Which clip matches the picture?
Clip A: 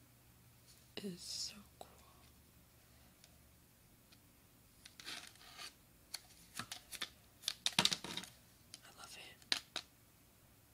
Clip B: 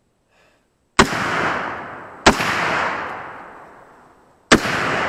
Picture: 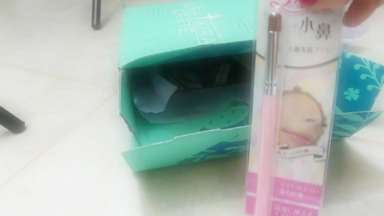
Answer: A